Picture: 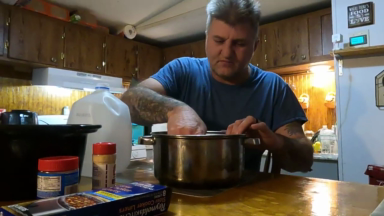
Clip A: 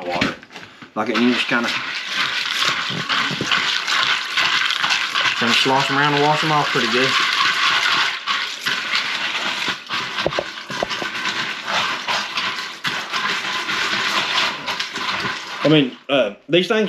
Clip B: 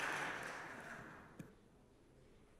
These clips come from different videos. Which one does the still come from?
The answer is A